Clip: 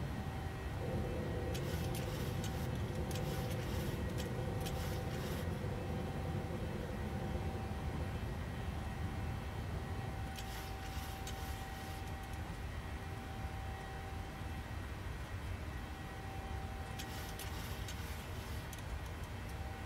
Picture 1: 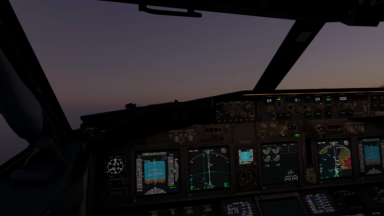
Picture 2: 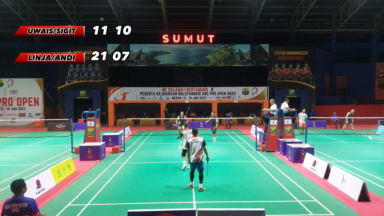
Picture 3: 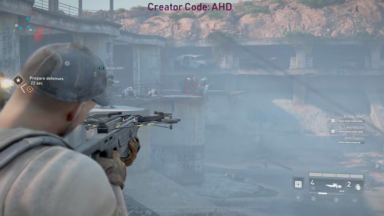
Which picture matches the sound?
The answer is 1